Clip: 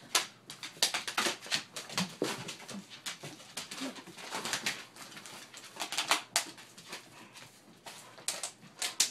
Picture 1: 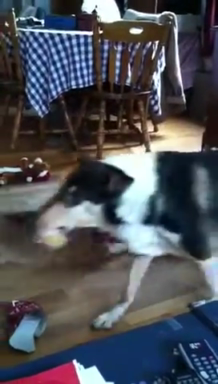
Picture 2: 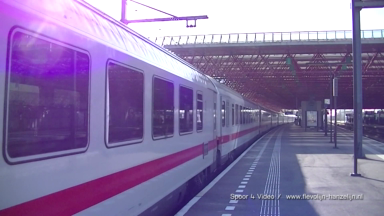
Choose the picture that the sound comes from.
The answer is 1